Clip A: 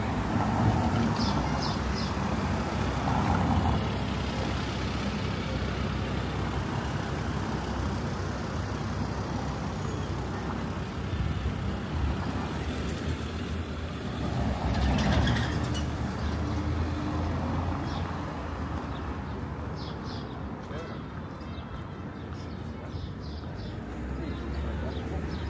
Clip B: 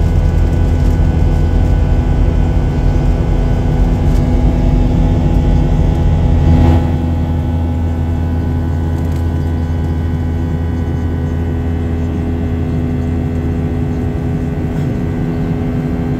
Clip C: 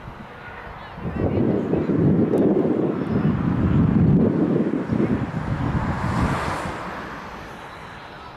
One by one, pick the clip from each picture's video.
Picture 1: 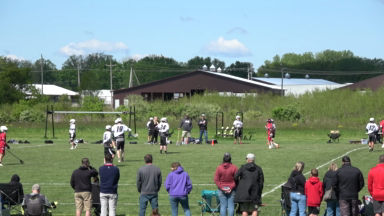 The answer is C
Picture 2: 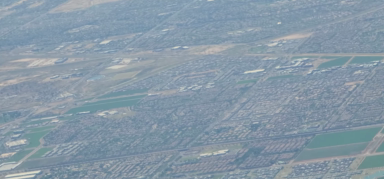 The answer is B